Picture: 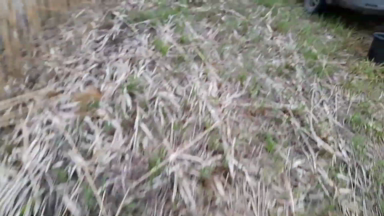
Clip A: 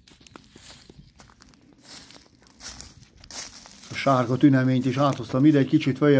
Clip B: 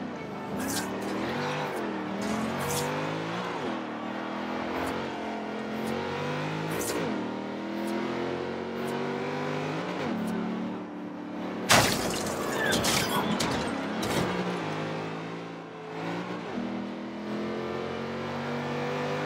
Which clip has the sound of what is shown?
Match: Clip A